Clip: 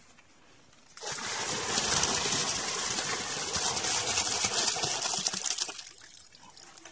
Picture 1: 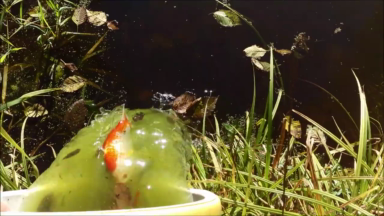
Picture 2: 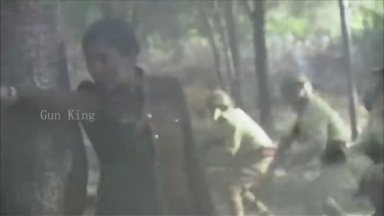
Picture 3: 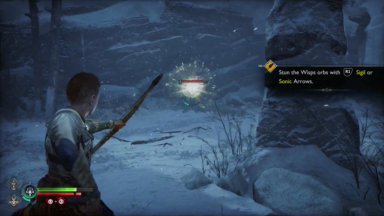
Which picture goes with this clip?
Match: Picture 1